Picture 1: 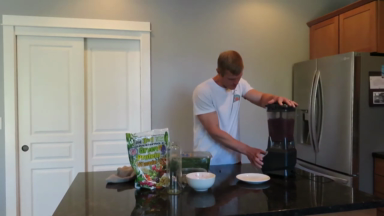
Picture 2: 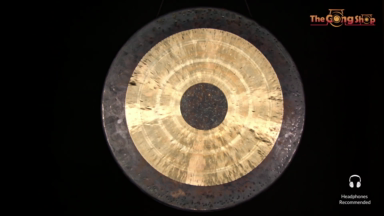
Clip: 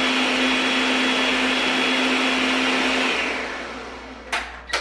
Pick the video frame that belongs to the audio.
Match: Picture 1